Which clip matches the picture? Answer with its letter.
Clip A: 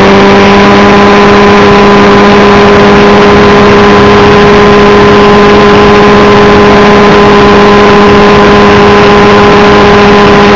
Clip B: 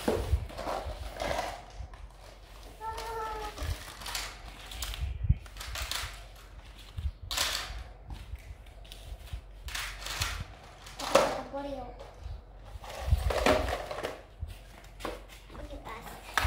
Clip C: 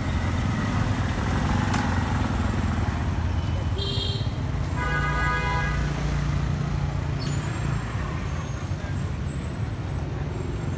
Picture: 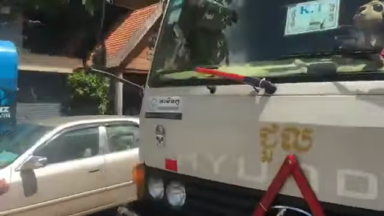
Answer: C